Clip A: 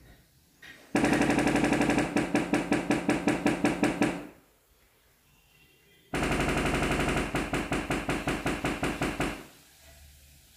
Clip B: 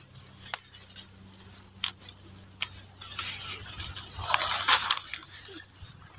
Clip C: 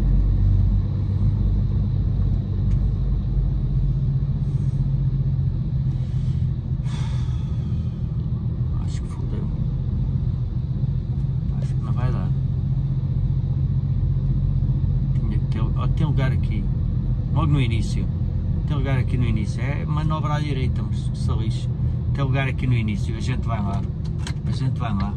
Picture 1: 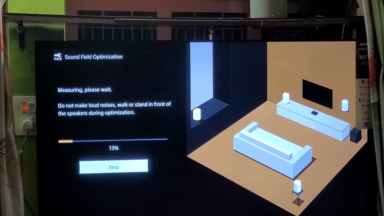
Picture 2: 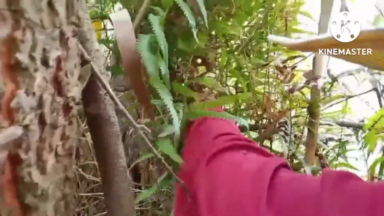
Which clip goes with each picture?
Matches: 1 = A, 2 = B